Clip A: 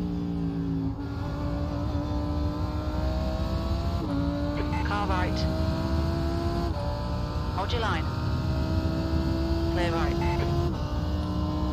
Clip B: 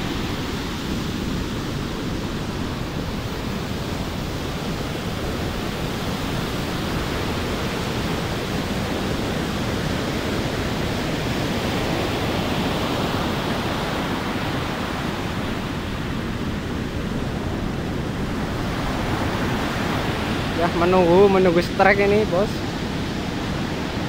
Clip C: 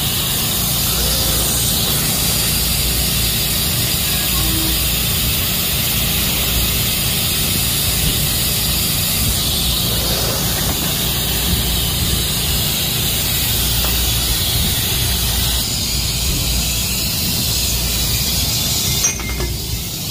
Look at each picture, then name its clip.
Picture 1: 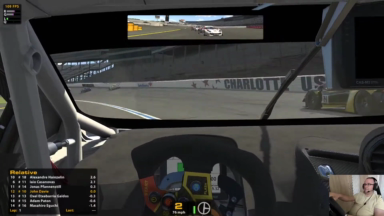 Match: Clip A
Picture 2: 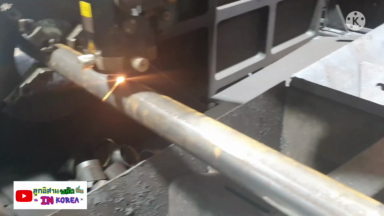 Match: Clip C